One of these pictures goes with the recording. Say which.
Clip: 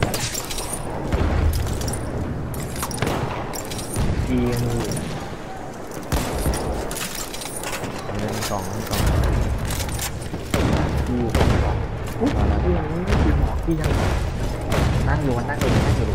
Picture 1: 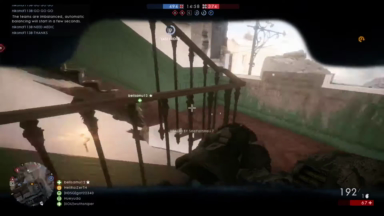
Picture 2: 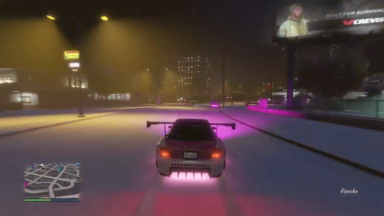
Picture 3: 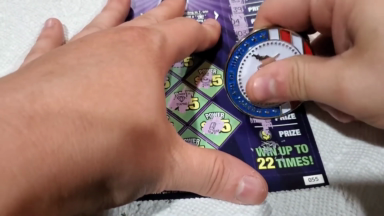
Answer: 1